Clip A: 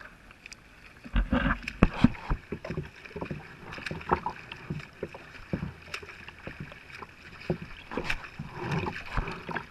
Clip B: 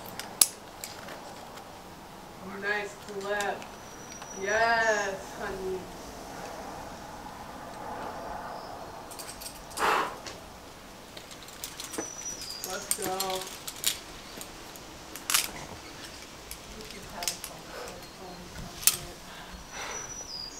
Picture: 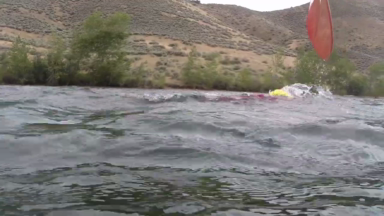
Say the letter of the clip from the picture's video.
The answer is A